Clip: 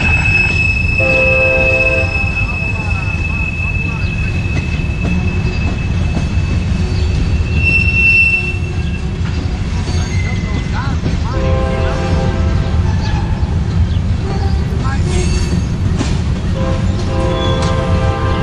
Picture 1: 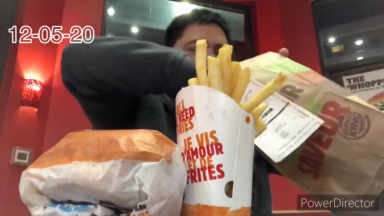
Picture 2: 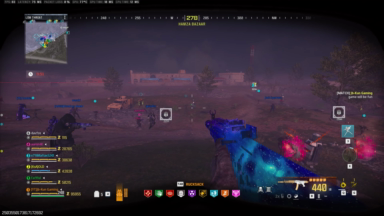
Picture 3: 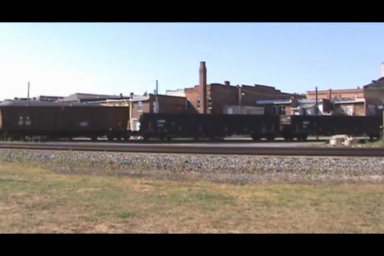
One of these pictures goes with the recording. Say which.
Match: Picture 3